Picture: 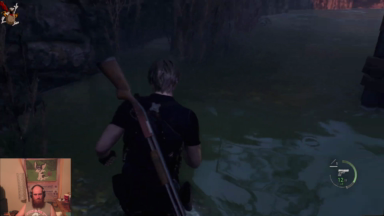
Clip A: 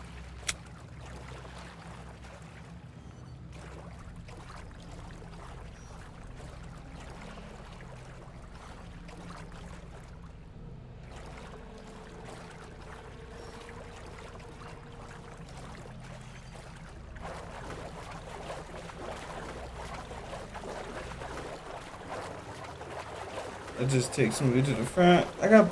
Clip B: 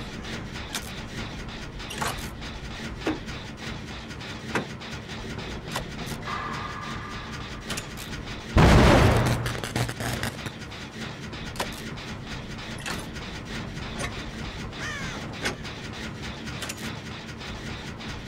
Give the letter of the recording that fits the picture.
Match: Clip A